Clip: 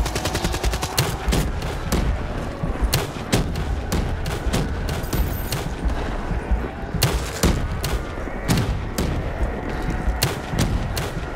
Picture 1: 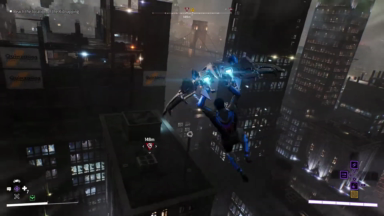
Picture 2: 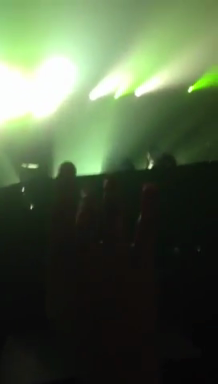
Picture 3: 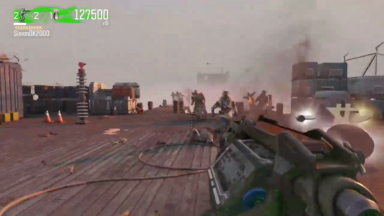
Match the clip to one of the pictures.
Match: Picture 3